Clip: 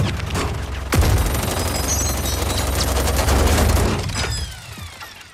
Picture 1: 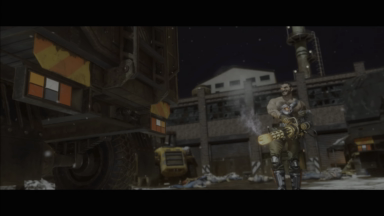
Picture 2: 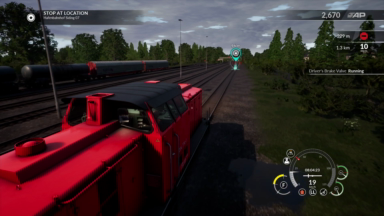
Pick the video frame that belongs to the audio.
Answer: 1